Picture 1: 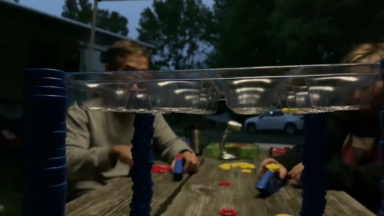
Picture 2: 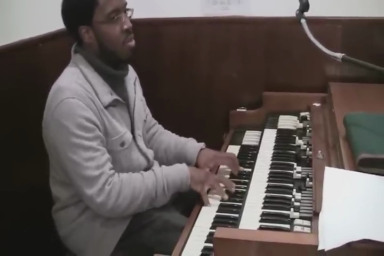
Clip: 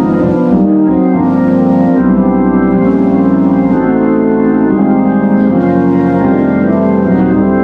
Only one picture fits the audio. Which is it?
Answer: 2